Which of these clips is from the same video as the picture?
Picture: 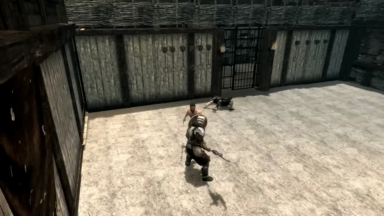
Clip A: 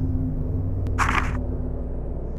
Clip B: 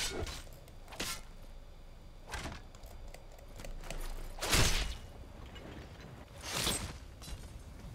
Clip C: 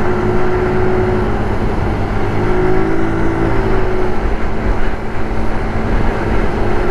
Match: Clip B